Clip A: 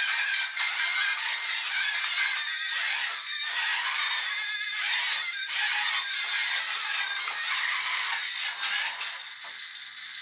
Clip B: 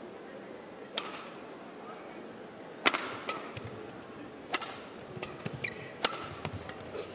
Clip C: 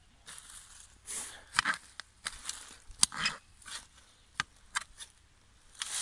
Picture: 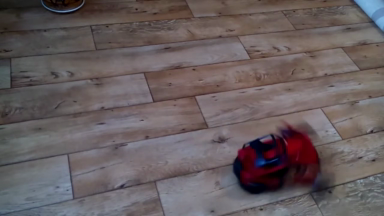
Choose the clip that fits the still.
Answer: A